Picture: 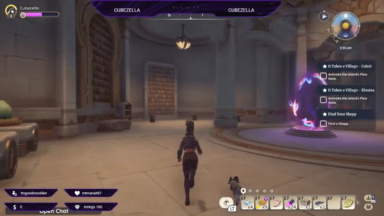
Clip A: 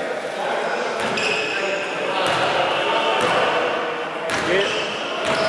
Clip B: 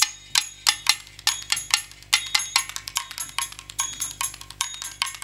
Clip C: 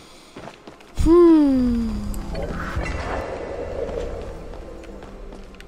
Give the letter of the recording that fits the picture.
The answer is C